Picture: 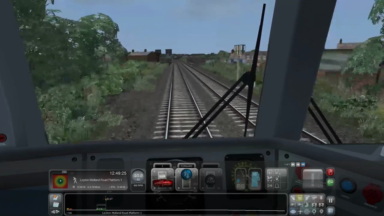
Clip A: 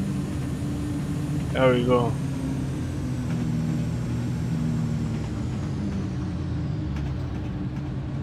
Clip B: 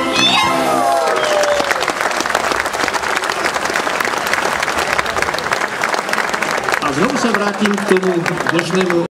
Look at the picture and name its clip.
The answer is A